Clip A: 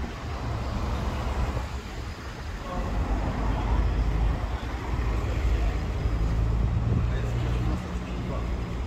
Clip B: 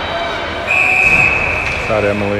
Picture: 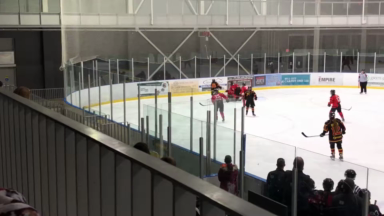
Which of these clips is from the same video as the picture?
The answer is B